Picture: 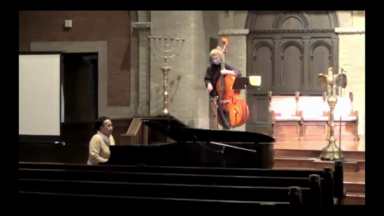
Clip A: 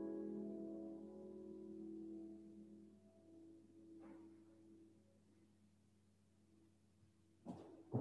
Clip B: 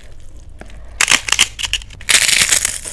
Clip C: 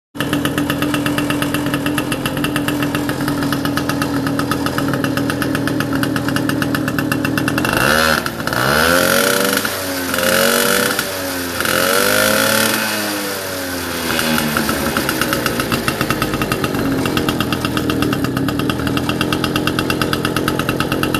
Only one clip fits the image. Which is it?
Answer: A